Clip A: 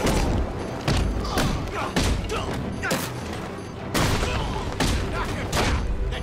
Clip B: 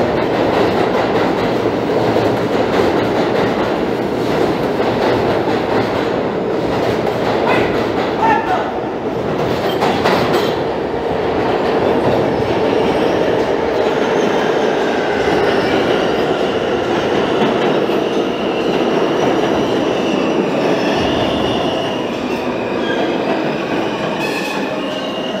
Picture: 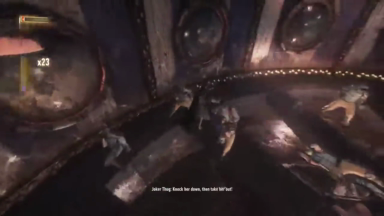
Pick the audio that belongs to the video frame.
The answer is A